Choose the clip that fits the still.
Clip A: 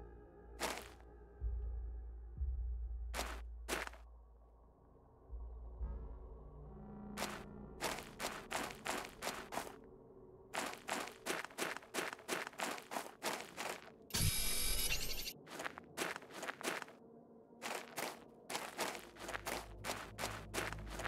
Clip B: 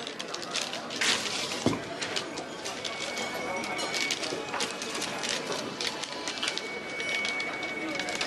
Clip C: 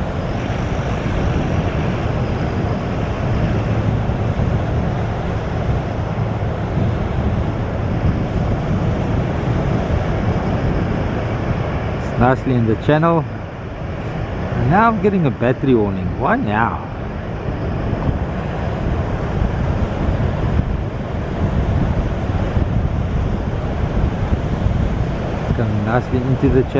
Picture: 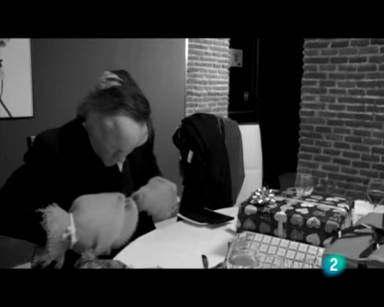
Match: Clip B